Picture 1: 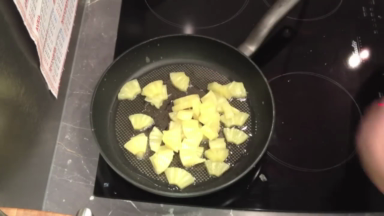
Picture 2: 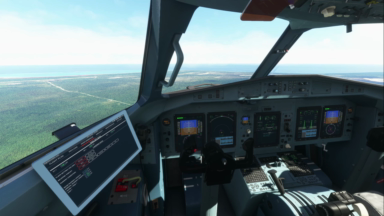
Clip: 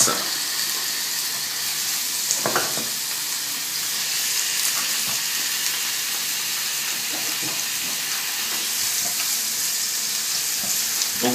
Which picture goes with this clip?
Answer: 1